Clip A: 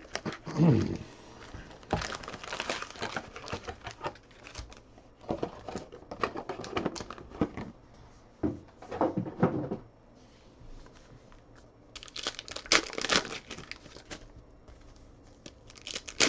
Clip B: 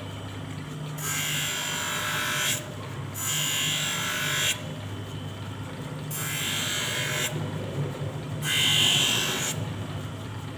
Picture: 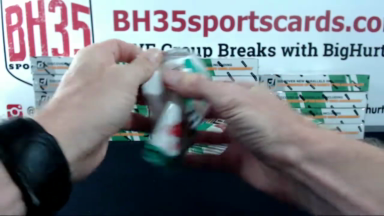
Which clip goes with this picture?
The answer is A